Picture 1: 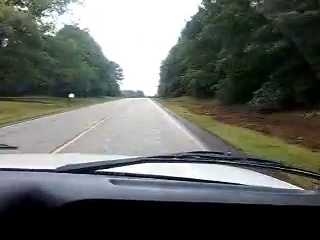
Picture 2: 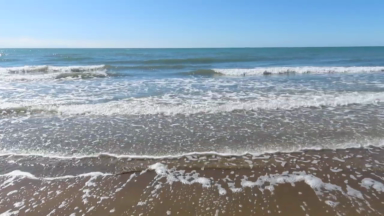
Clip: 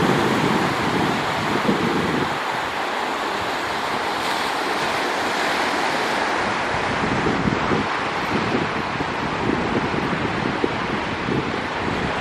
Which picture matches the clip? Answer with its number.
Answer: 2